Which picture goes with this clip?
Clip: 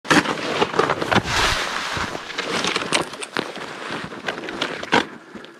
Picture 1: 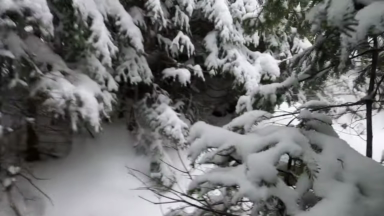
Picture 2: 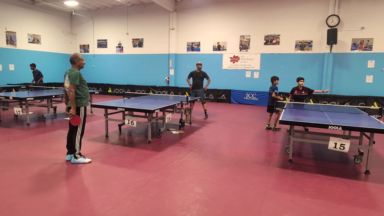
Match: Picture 1